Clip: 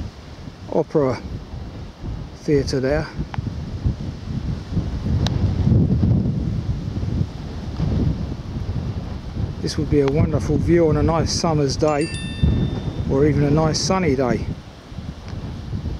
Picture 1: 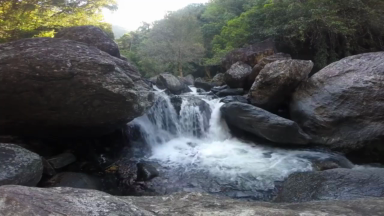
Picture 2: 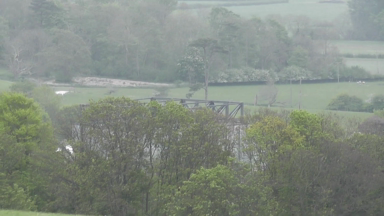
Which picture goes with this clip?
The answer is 2